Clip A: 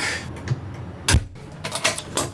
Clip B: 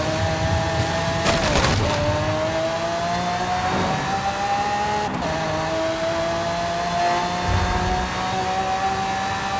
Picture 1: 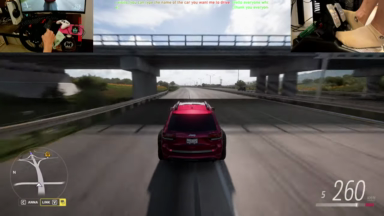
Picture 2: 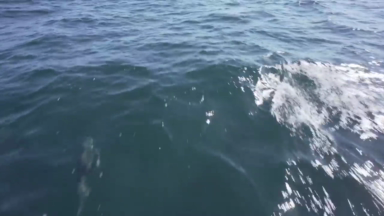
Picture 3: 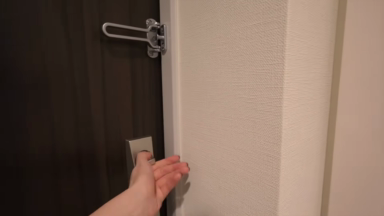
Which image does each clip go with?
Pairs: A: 3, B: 1